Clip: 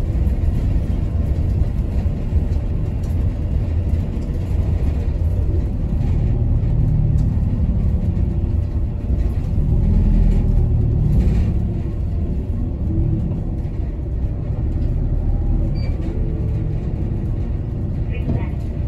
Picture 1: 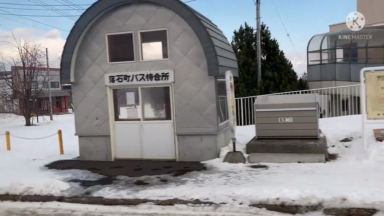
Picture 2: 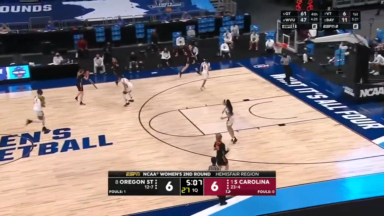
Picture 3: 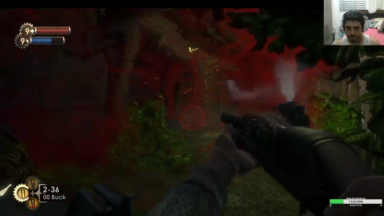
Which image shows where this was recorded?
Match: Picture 1